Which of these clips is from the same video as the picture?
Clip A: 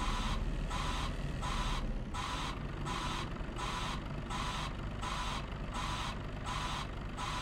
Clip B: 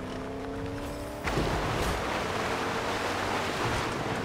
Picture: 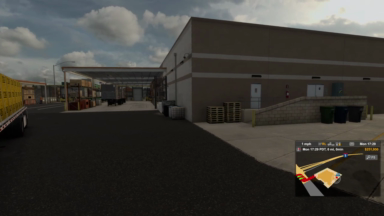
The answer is A